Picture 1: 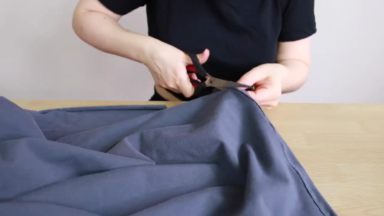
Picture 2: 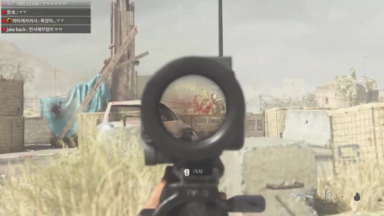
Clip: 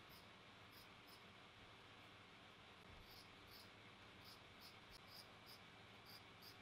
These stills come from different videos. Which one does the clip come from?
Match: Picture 1